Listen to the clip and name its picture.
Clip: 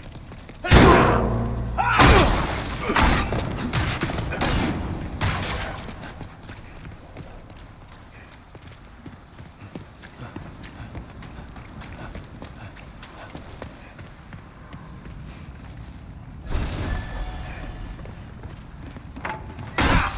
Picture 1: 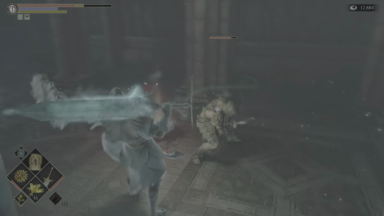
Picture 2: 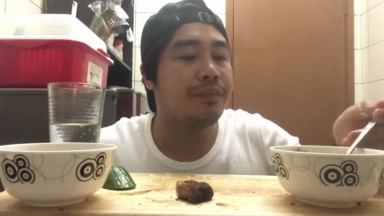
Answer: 1